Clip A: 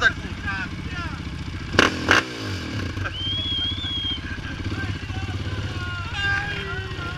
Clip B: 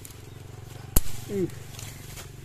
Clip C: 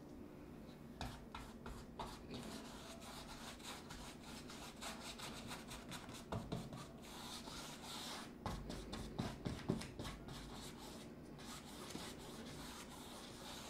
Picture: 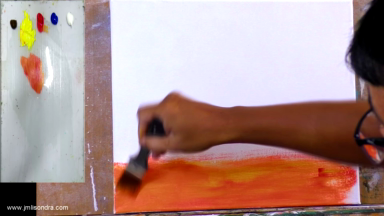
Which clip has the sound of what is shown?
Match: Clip C